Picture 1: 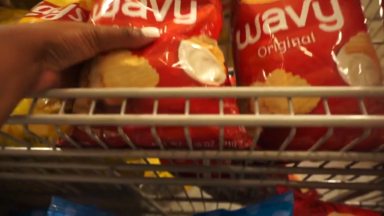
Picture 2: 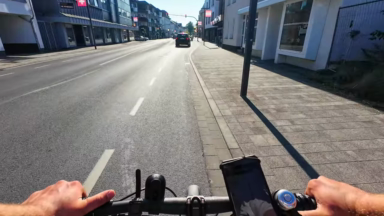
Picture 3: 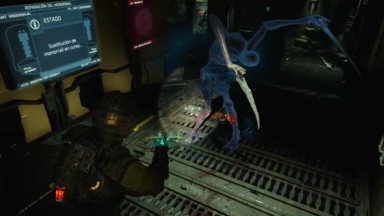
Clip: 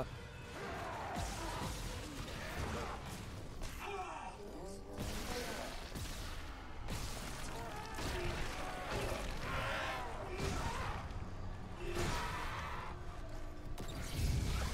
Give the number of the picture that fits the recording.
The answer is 3